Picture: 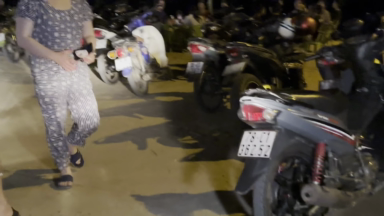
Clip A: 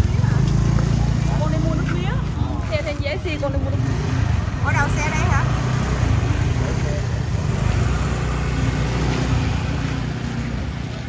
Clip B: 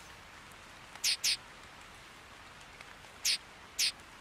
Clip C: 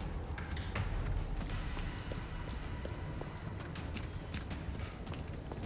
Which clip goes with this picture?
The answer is A